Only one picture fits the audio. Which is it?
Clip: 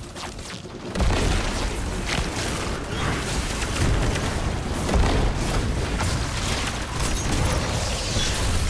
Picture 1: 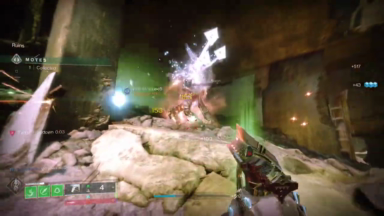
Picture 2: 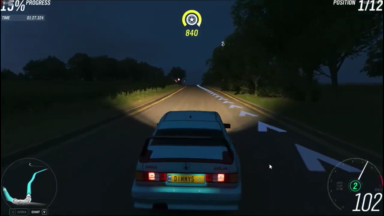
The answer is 1